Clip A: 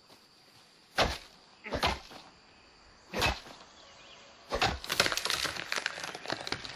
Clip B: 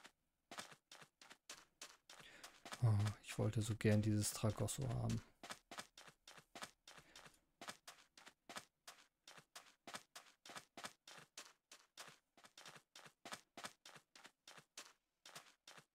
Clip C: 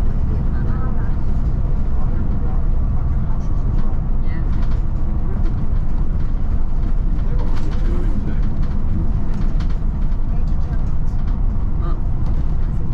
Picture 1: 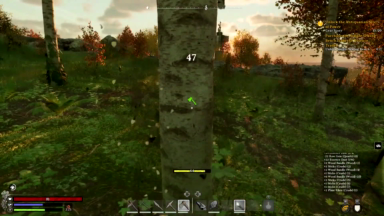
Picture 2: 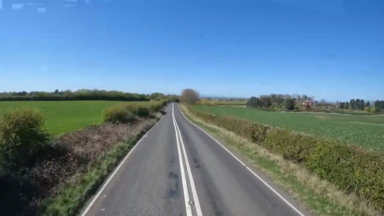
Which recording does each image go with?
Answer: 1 A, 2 C